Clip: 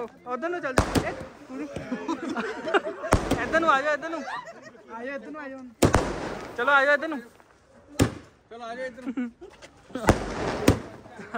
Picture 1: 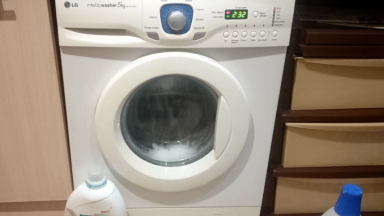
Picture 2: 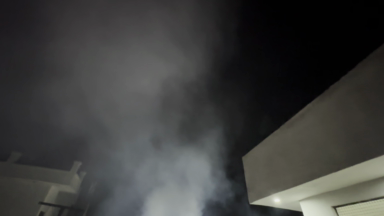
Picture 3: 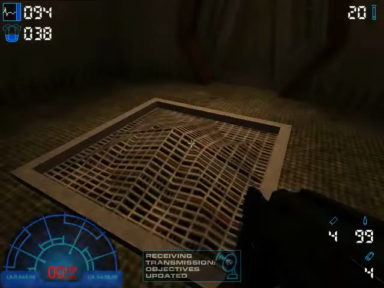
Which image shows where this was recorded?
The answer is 2